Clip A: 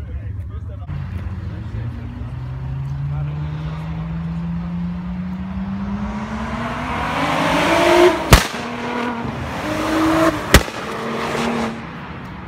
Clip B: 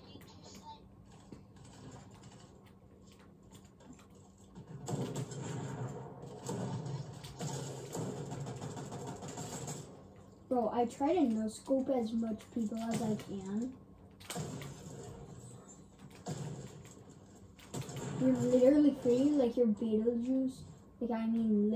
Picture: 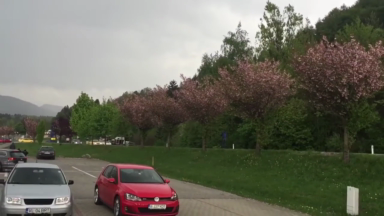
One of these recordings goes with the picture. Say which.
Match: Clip A